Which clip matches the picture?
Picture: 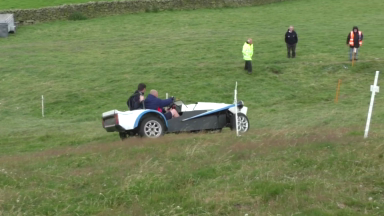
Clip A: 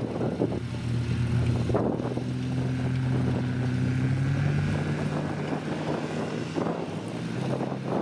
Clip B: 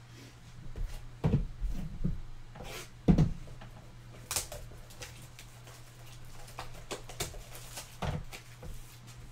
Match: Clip A